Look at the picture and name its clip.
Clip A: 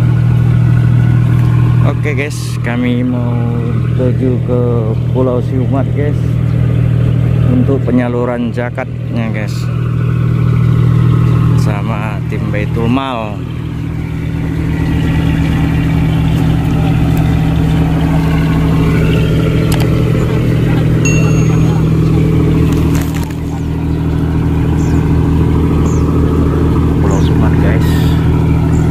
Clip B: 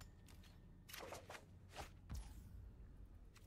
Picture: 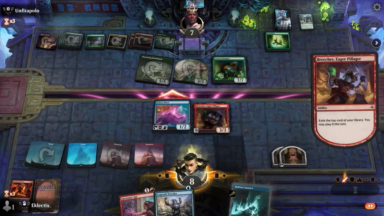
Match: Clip B